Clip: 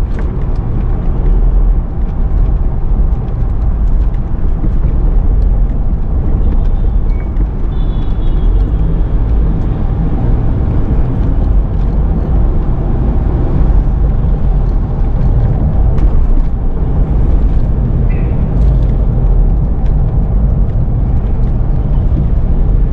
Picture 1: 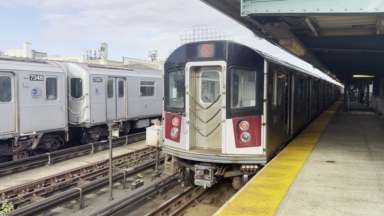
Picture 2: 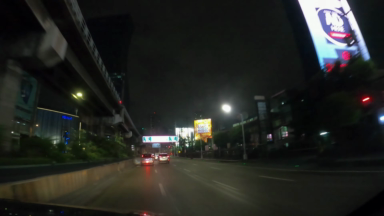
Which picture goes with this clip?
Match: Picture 2